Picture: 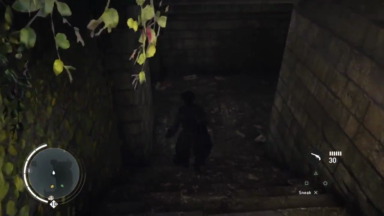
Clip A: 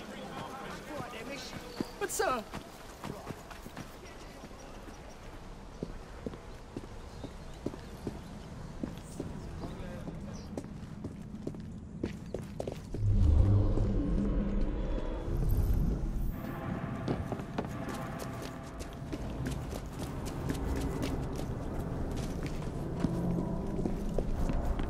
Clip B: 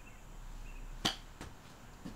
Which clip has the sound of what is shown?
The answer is A